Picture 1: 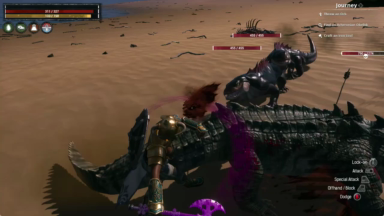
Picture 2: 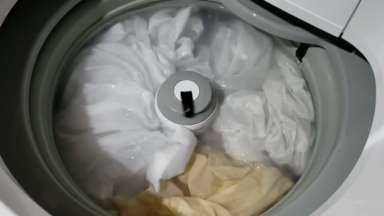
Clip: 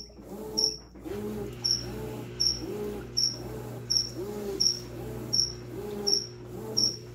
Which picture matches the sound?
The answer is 2